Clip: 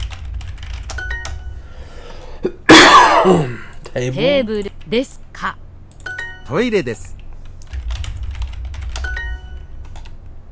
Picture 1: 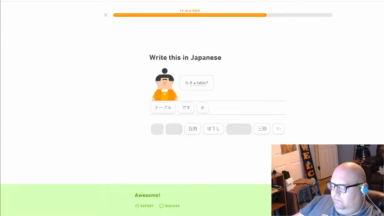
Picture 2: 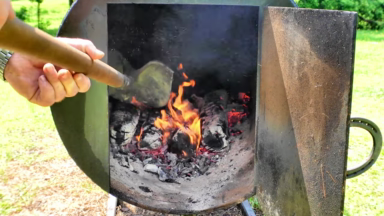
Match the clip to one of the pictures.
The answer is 1